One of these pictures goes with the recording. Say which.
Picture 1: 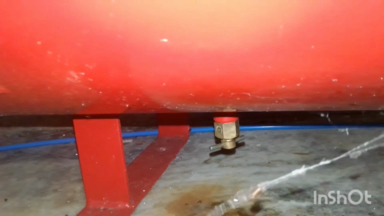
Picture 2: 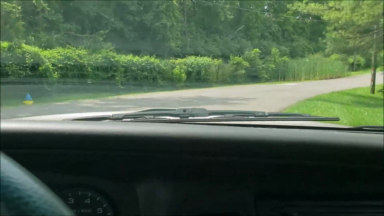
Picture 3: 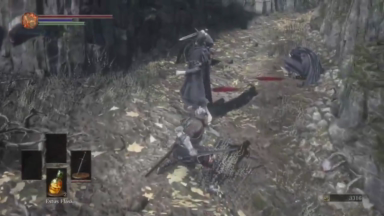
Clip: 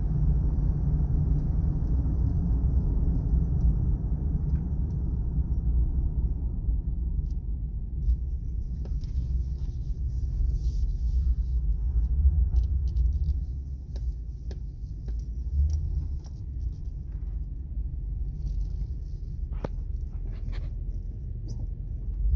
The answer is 2